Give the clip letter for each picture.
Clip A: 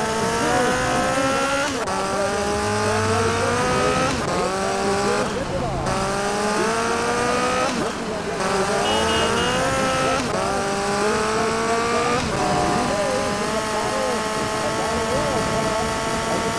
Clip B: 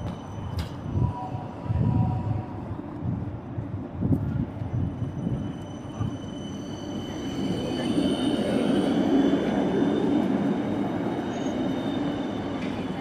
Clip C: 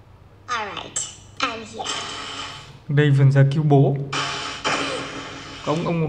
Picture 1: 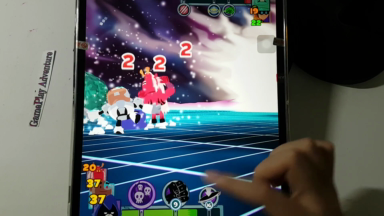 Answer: C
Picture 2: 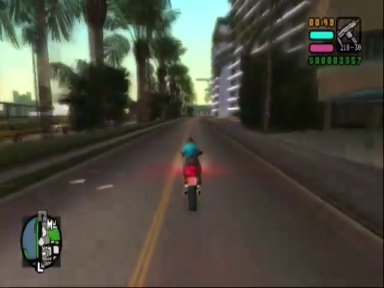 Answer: A